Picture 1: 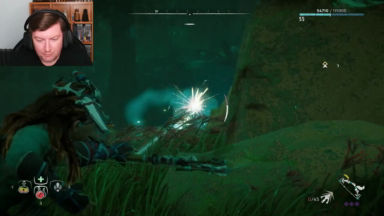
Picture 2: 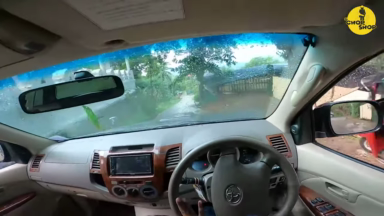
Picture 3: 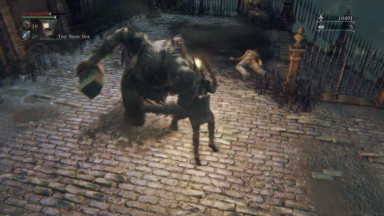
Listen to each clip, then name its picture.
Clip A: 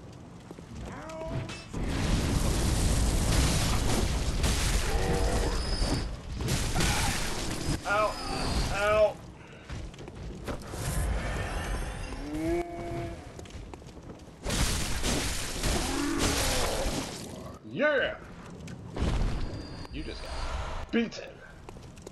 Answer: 3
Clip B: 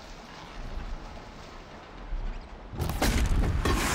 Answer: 1